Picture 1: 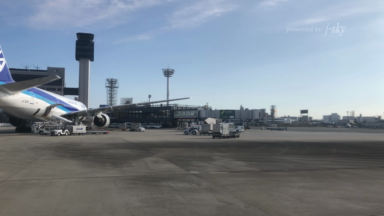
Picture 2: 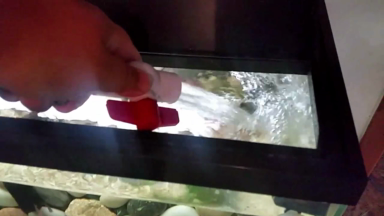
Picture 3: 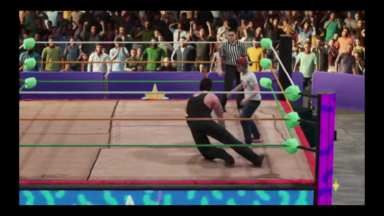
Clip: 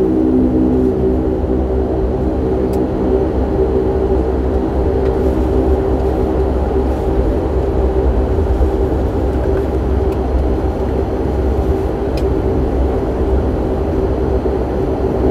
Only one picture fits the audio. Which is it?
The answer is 1